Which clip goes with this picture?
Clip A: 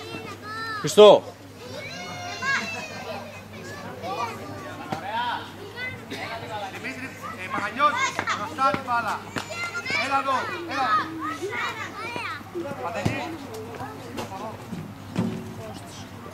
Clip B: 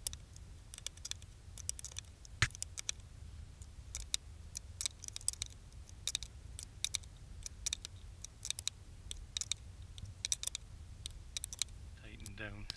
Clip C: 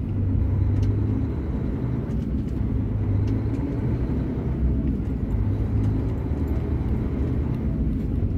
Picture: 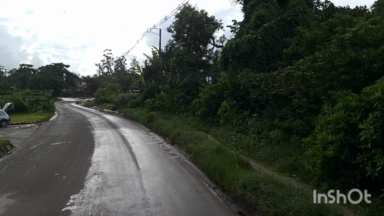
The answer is C